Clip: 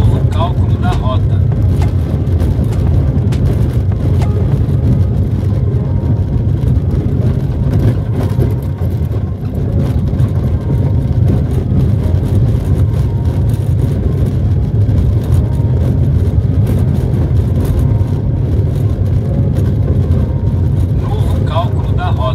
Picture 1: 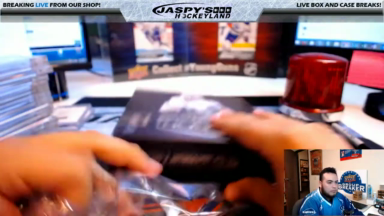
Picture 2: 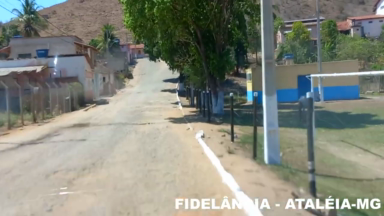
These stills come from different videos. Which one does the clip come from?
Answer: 2